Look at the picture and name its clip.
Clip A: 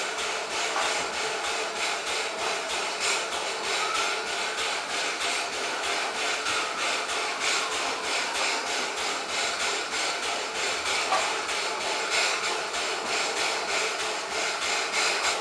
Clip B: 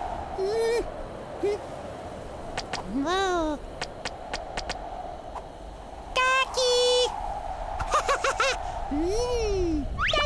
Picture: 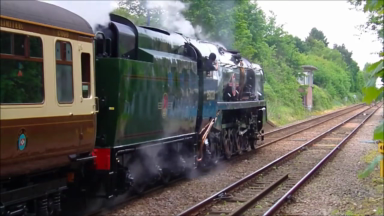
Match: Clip A